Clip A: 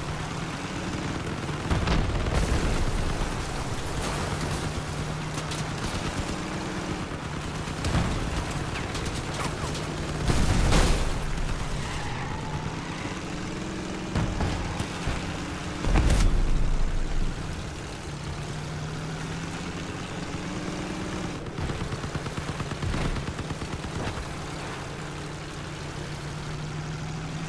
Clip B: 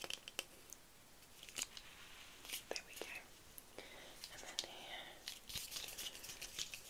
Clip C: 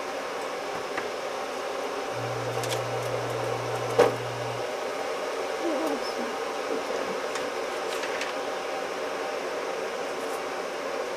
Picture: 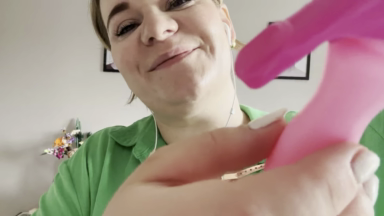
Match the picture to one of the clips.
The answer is B